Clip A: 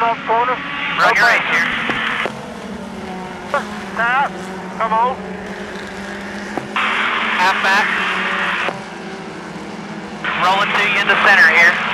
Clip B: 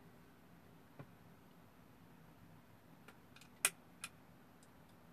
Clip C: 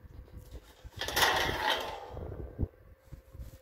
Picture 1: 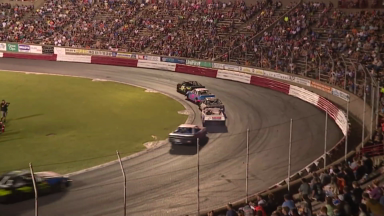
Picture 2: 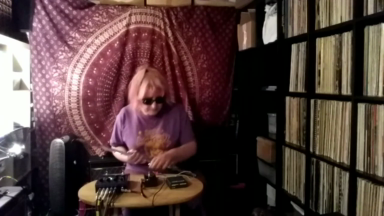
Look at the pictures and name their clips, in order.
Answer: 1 A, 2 B